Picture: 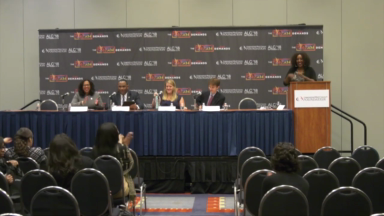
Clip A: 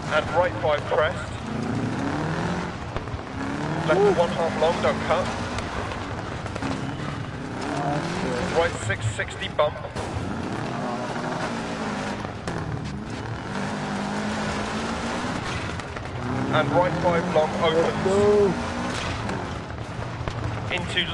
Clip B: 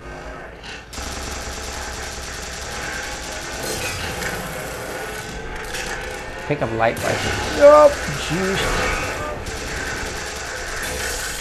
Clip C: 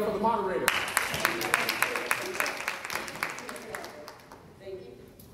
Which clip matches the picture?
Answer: C